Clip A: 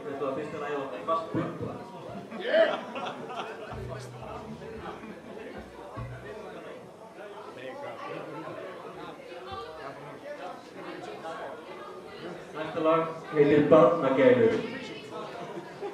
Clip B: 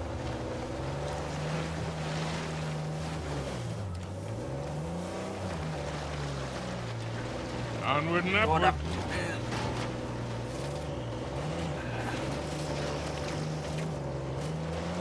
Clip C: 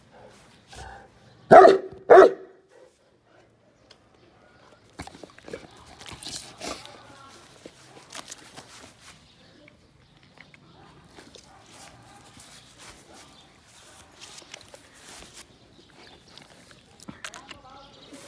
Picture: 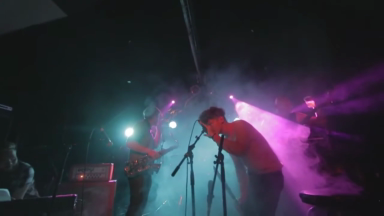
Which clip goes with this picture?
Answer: A